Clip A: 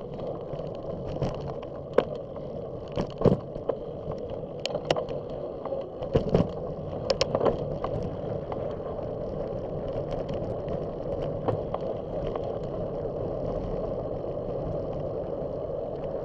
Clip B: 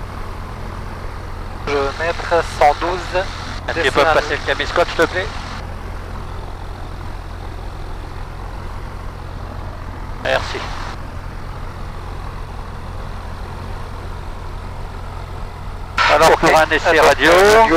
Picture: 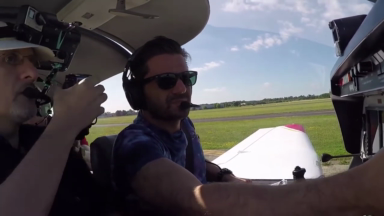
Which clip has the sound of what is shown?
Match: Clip B